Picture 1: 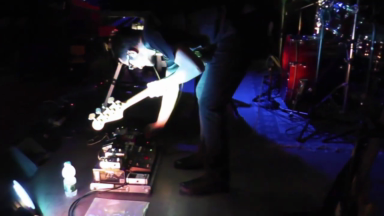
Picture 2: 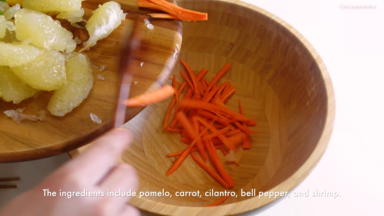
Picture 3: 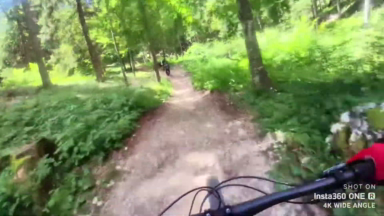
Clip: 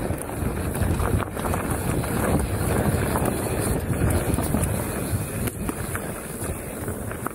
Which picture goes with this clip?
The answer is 3